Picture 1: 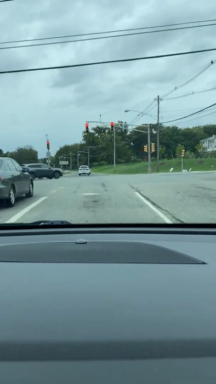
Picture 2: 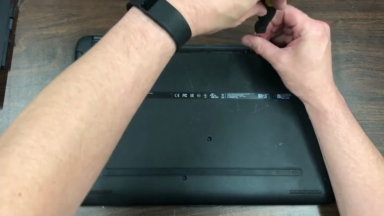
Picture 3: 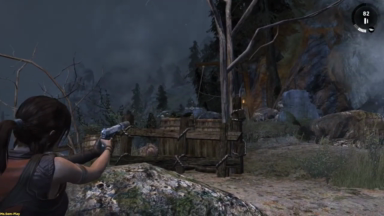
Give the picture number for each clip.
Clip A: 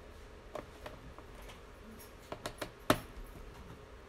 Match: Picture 2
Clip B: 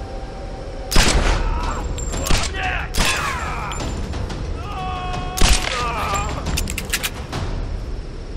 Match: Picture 3